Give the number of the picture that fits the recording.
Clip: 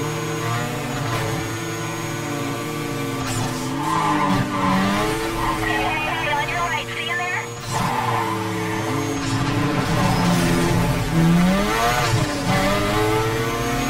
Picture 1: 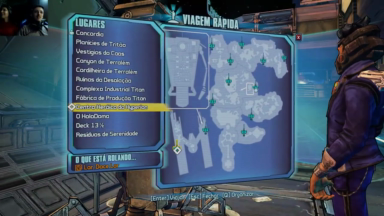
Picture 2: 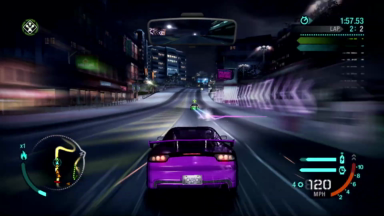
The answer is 2